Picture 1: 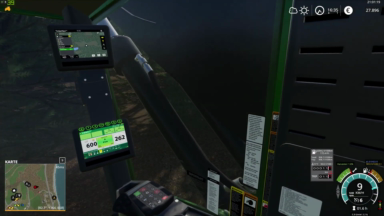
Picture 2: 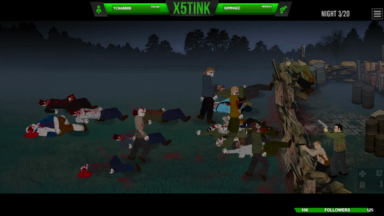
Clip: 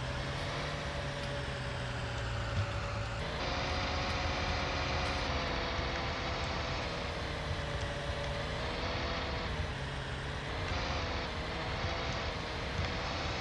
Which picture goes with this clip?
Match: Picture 1